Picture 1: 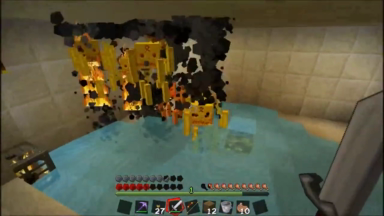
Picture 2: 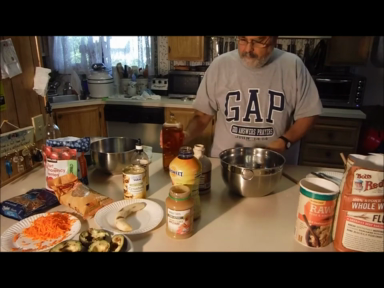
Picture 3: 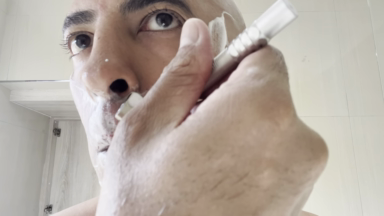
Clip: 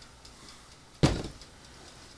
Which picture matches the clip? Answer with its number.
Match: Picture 2